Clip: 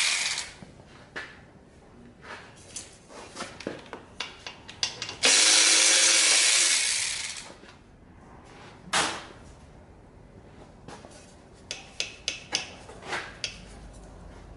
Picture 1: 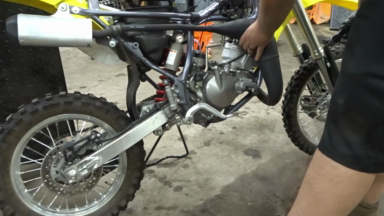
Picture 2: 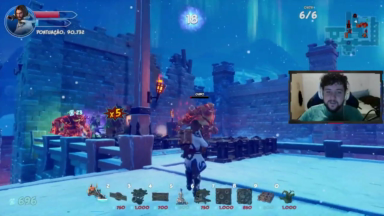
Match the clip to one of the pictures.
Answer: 1